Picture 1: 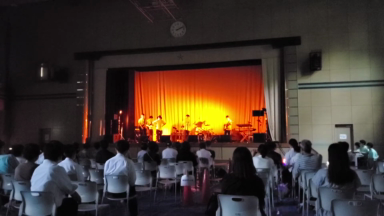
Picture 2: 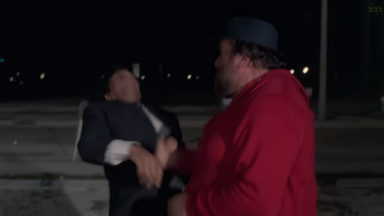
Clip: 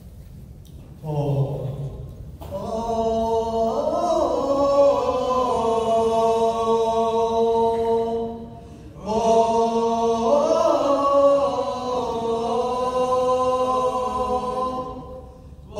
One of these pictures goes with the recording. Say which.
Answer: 1